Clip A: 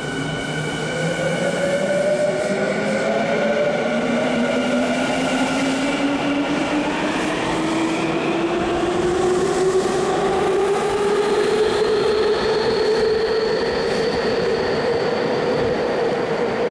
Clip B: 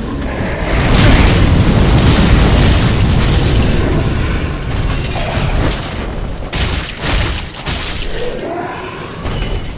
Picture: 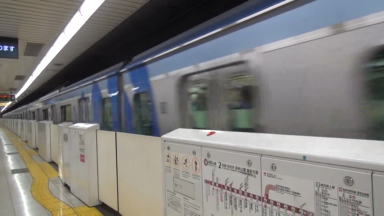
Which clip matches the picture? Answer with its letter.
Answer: A